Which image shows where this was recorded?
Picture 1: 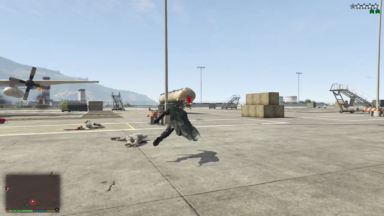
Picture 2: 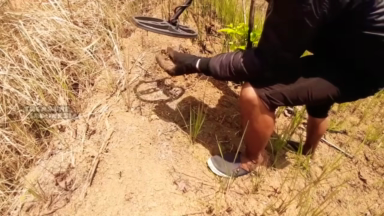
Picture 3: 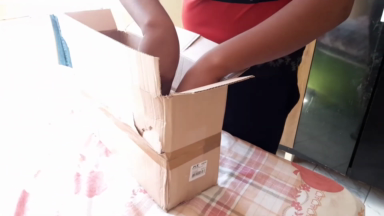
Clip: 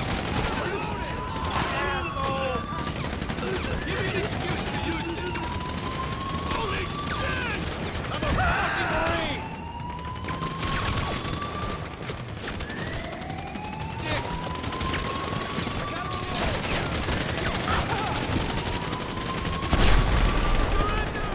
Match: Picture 1